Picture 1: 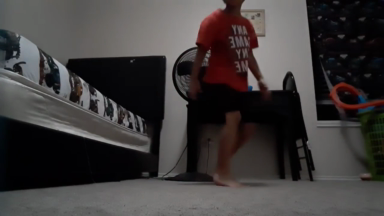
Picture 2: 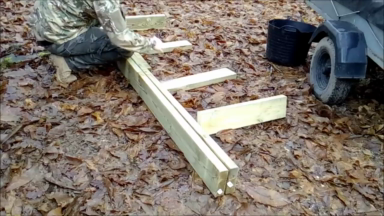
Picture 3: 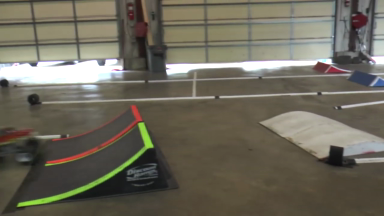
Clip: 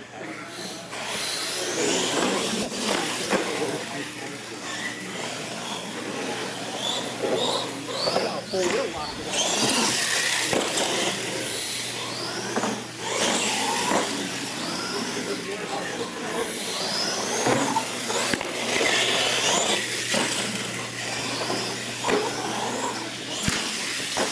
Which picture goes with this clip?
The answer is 3